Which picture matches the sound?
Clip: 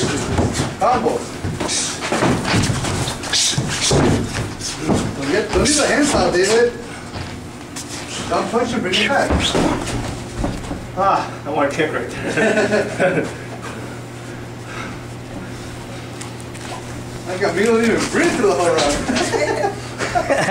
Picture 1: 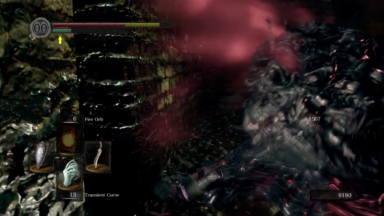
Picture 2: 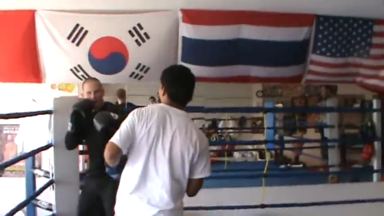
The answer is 2